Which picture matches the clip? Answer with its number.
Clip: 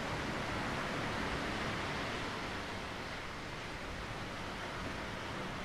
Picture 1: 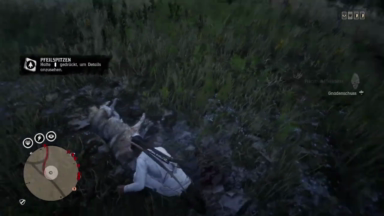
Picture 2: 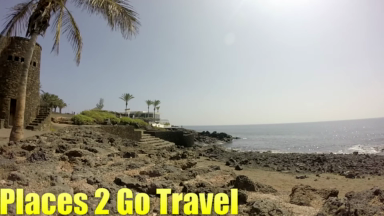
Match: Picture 2